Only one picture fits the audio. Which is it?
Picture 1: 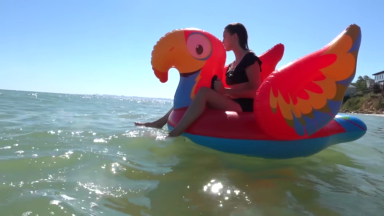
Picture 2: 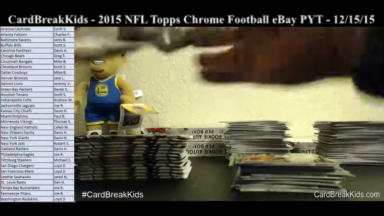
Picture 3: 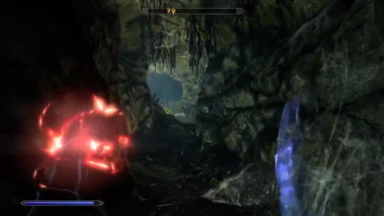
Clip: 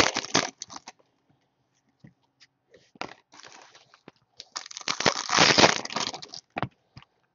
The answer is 2